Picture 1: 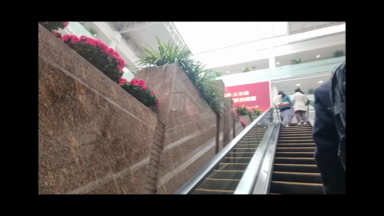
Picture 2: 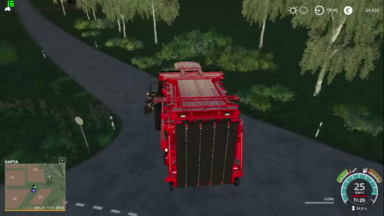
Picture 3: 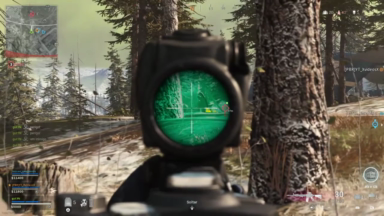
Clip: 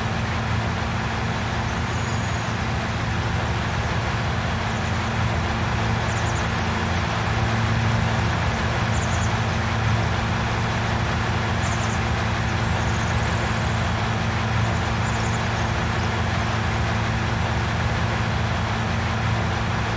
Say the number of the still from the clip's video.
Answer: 2